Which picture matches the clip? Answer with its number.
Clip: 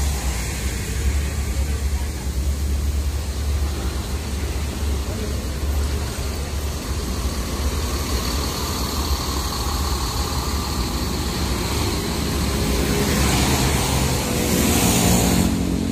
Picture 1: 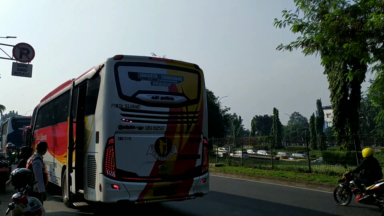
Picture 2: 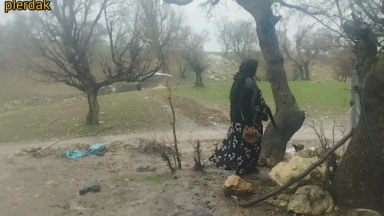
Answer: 1